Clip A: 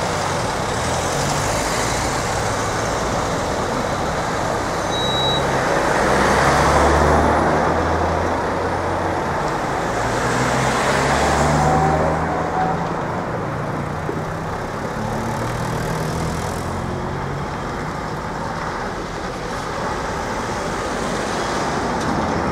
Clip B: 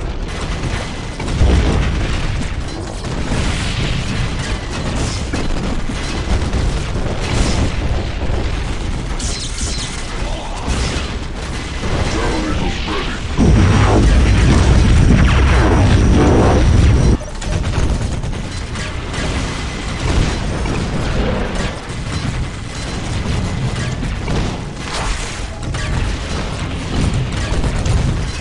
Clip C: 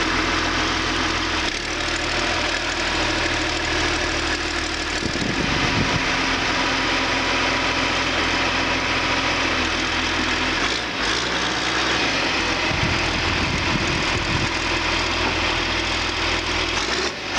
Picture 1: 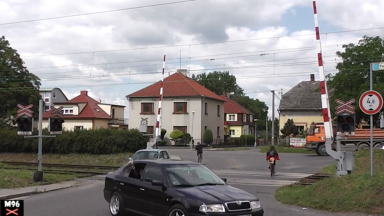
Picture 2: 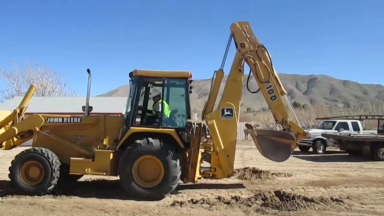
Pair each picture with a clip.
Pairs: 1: A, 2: C